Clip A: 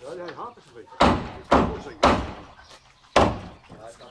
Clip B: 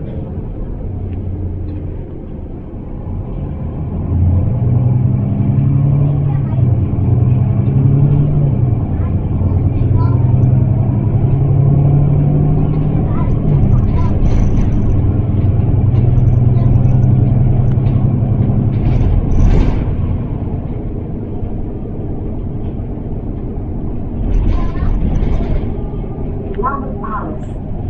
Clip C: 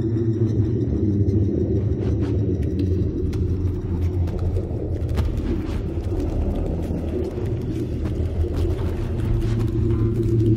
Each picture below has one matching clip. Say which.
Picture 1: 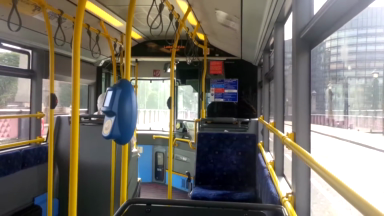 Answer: B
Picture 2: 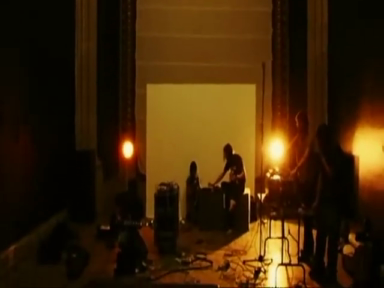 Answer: C